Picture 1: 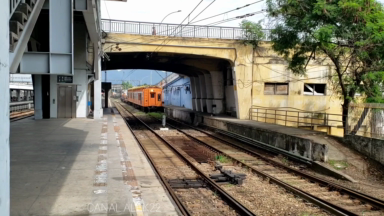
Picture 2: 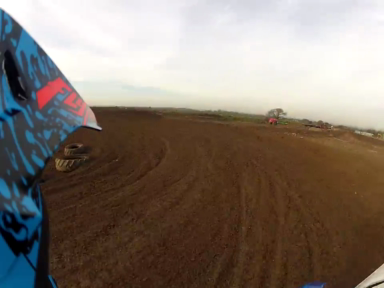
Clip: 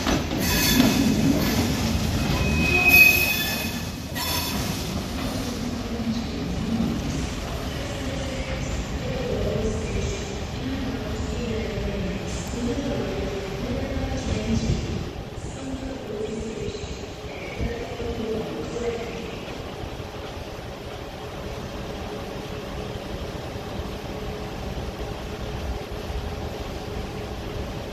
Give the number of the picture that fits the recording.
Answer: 1